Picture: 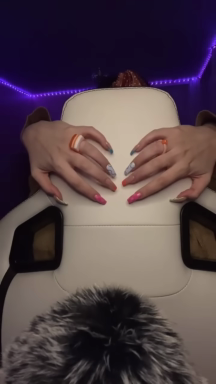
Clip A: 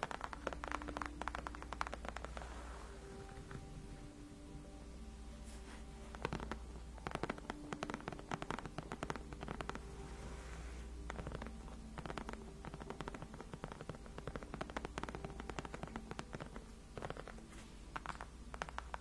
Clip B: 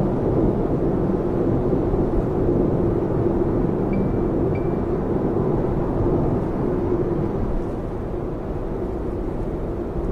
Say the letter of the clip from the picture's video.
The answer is A